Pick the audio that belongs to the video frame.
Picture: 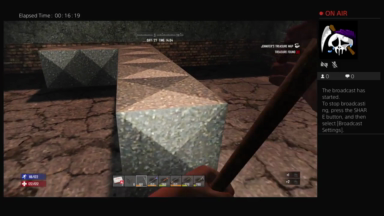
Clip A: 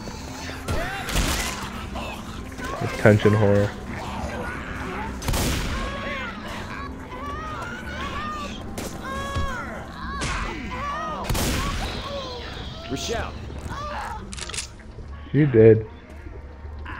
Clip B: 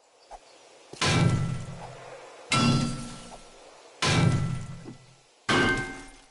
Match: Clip B